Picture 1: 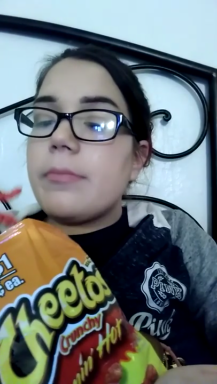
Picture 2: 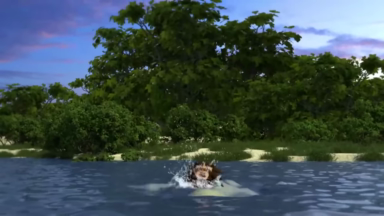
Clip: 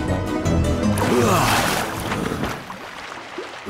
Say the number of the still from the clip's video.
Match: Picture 2